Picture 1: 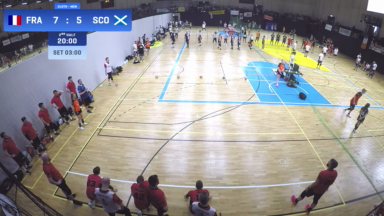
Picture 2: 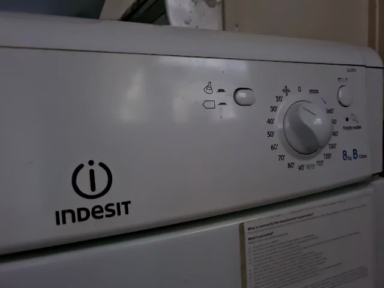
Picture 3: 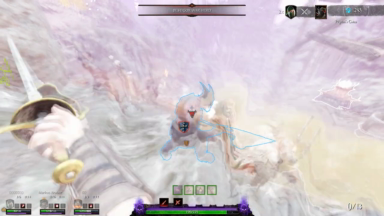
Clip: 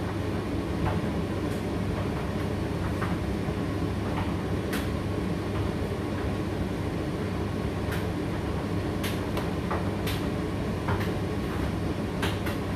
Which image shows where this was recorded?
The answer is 2